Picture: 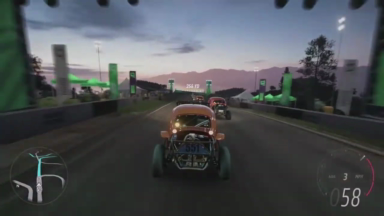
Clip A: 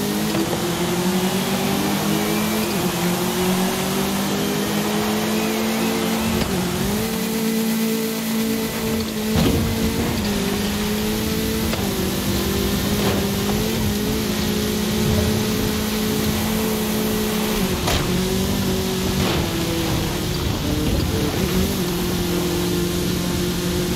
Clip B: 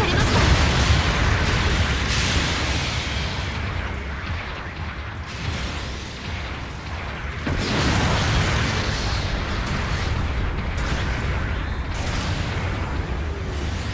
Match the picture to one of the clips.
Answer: A